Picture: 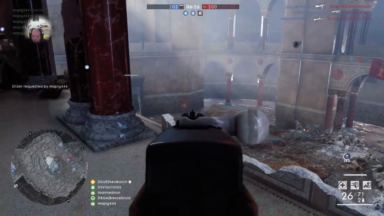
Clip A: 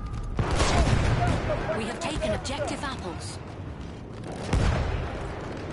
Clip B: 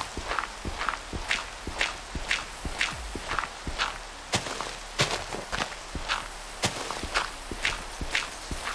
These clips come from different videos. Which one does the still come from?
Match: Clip A